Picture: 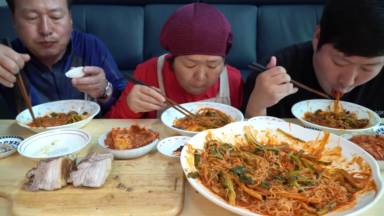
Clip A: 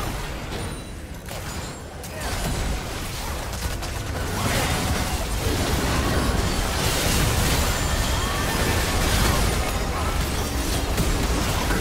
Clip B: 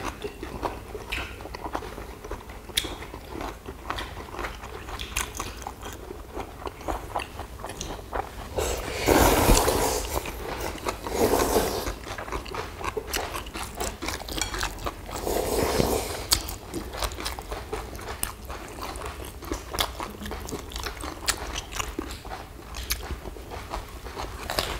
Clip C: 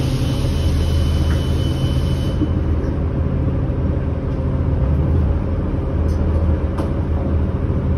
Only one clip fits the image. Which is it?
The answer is B